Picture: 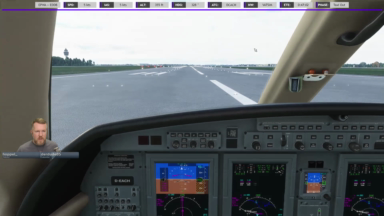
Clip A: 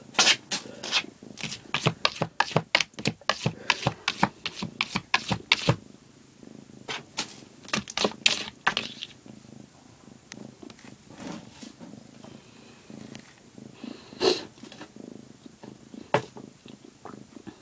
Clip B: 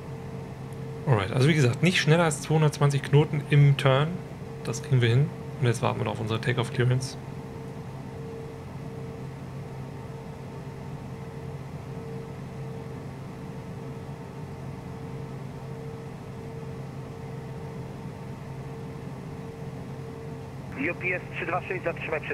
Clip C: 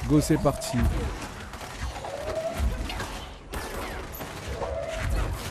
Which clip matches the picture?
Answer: B